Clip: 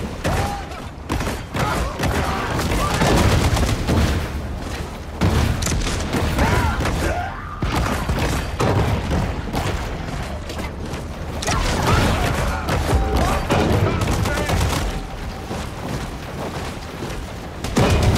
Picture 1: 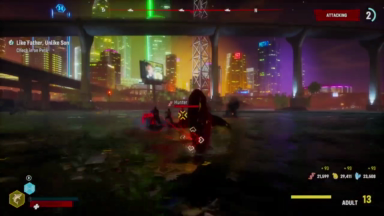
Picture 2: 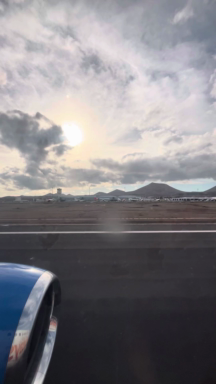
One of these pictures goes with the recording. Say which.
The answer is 1